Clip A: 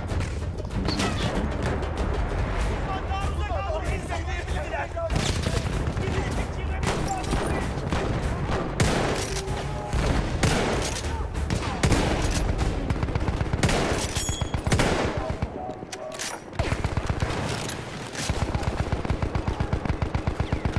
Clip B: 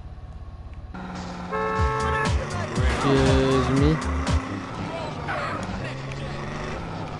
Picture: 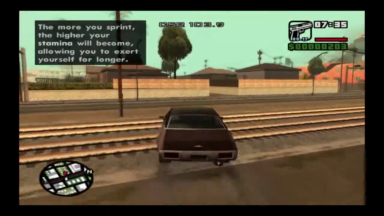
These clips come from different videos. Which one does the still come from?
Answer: B